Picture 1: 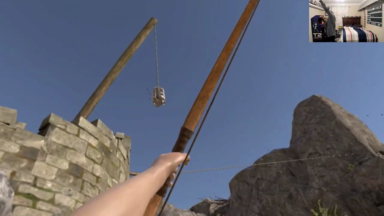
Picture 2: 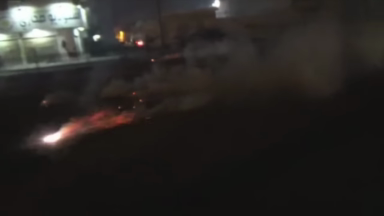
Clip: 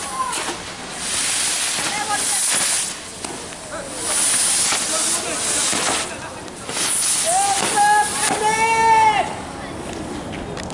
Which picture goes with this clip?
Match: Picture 2